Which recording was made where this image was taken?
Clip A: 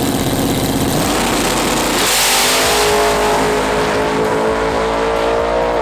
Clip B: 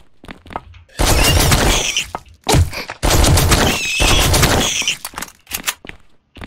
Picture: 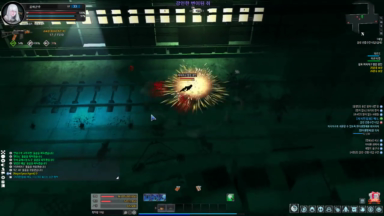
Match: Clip B